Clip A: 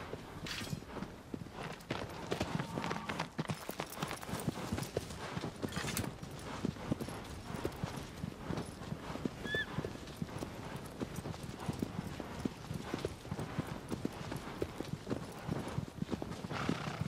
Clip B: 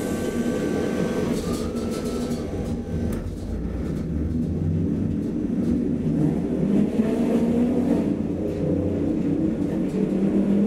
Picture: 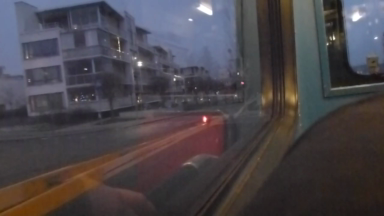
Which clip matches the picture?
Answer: B